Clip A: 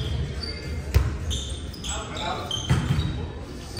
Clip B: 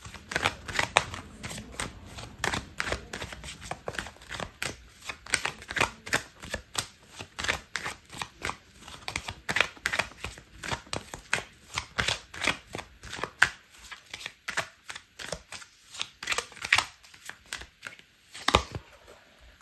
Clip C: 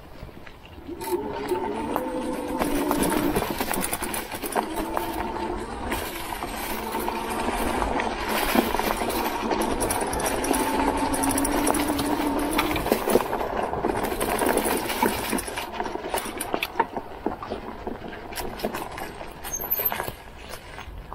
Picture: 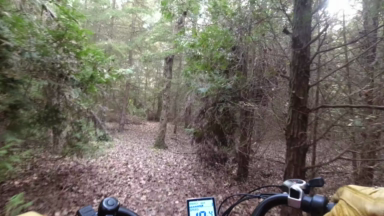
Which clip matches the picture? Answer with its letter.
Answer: C